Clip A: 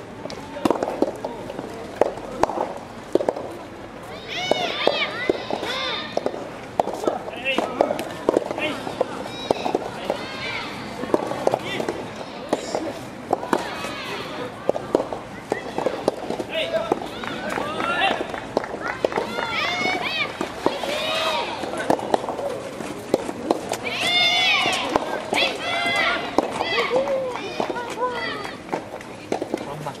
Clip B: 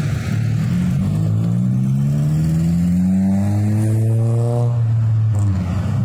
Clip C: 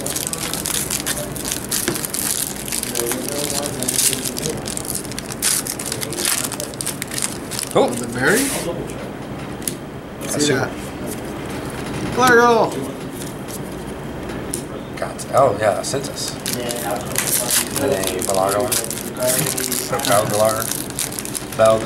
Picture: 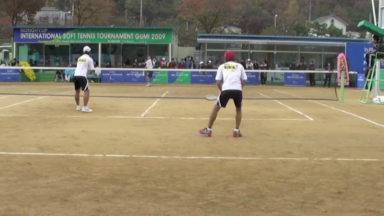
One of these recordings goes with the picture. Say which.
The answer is A